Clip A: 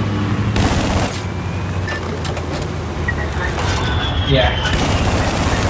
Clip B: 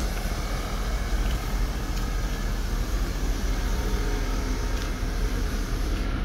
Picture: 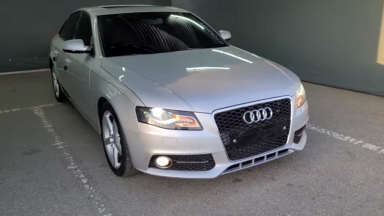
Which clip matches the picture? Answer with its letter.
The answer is B